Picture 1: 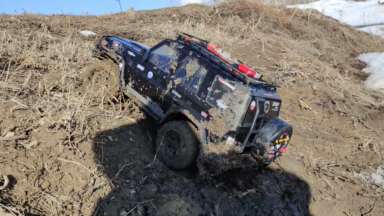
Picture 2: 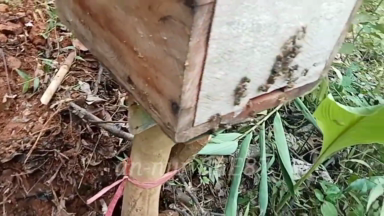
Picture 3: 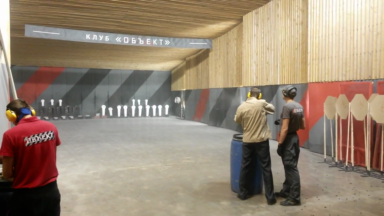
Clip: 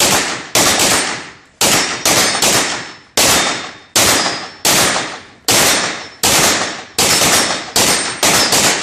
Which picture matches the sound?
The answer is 3